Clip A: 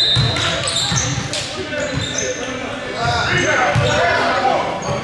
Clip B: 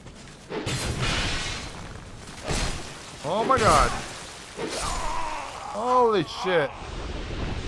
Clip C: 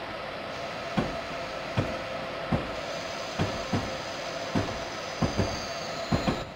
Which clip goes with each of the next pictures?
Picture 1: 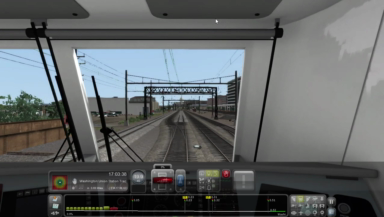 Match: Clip C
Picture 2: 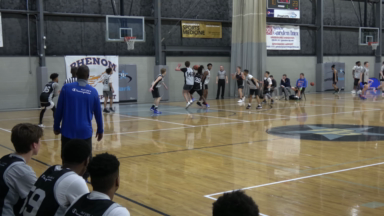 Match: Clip A